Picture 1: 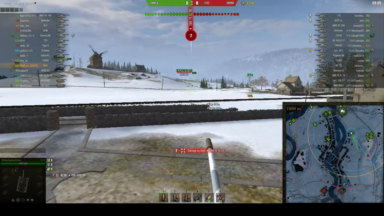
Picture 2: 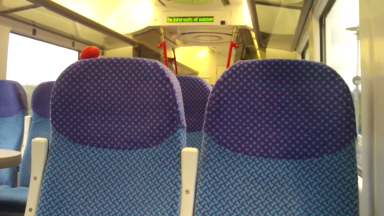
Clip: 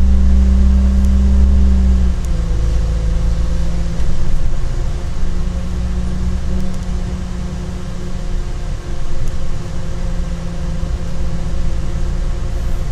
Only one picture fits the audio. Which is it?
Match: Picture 2